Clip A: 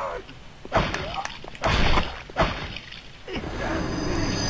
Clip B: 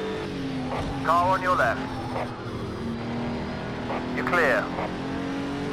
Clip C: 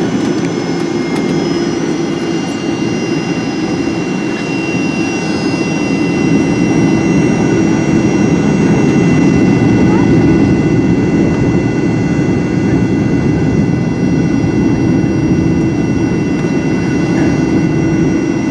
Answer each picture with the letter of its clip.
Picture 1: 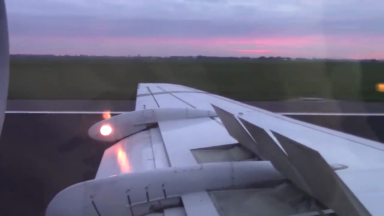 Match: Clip C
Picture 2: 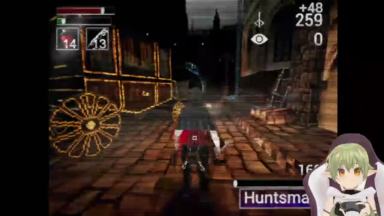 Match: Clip A